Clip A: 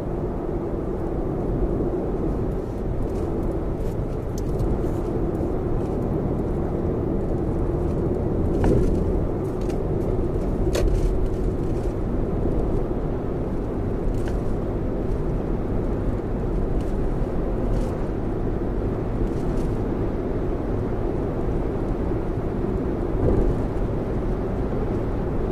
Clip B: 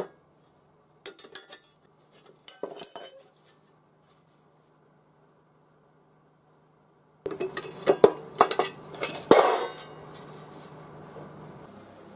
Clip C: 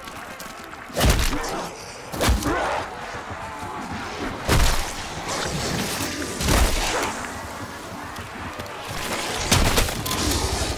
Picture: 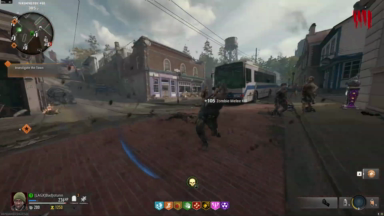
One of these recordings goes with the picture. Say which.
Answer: C